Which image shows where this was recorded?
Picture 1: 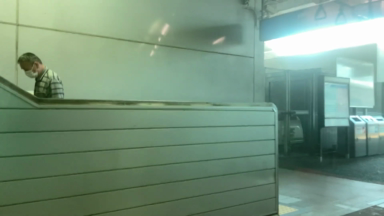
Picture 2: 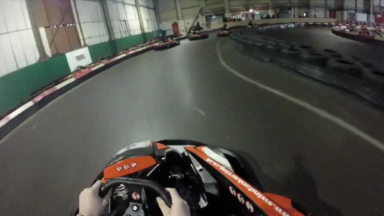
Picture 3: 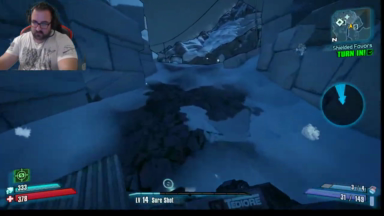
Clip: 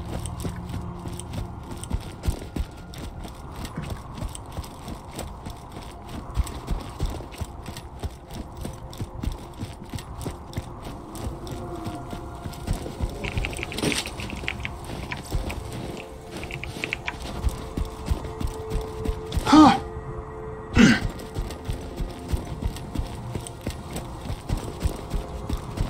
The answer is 3